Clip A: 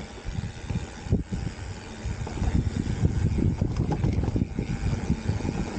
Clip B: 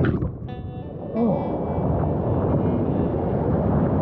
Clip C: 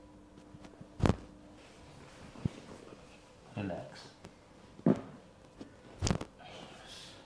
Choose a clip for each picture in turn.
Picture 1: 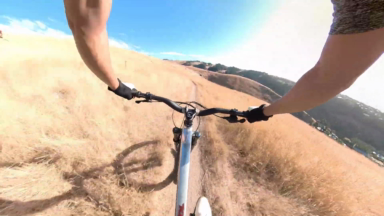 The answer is A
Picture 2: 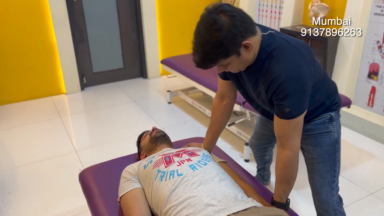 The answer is C